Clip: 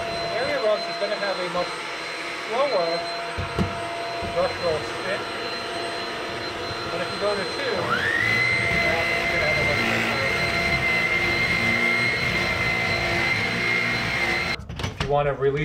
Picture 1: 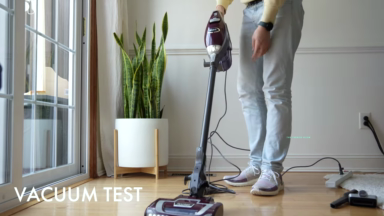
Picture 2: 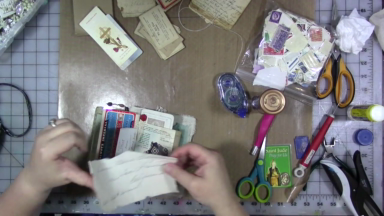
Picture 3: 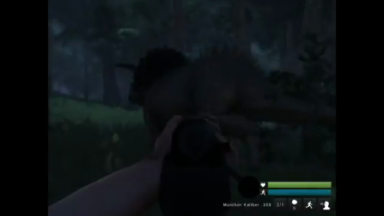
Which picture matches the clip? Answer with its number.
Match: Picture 1